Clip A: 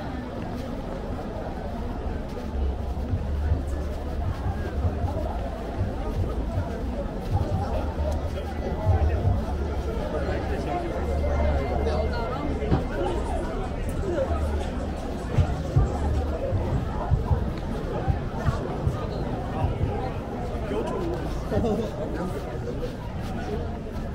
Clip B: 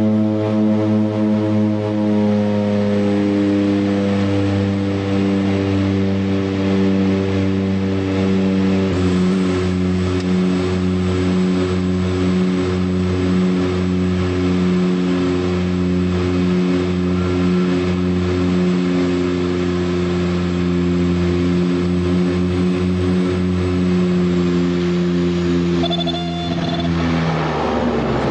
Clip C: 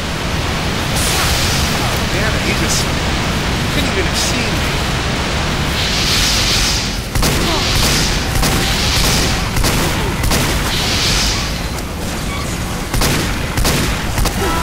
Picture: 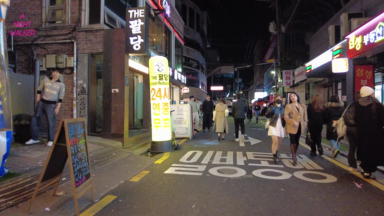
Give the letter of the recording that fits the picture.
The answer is A